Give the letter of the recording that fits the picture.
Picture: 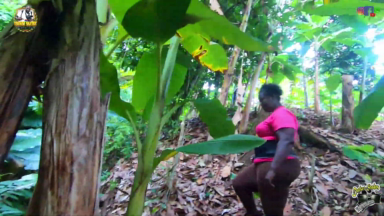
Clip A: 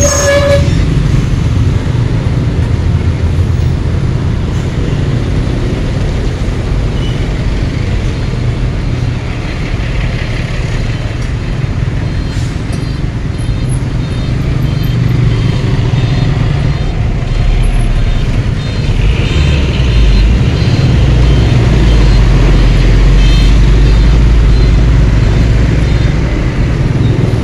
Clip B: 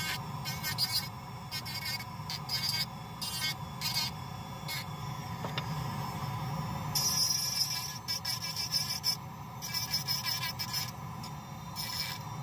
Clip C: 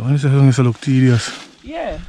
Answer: C